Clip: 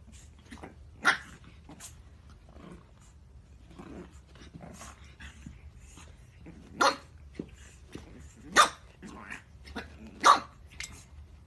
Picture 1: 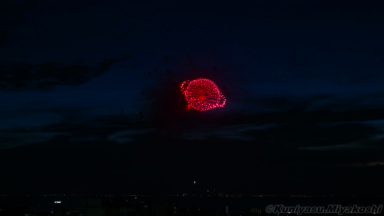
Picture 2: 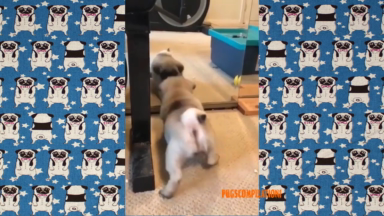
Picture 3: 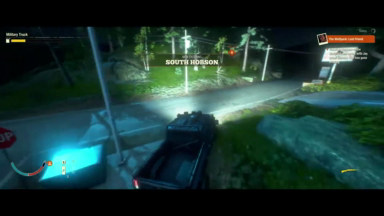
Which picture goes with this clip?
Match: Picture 2